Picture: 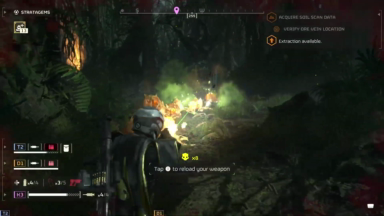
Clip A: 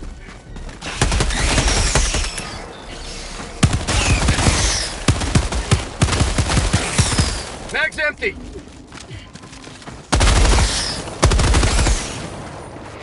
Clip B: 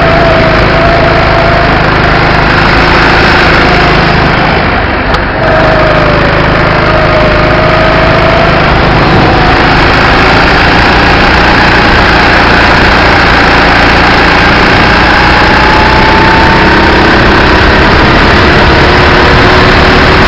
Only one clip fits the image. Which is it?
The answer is A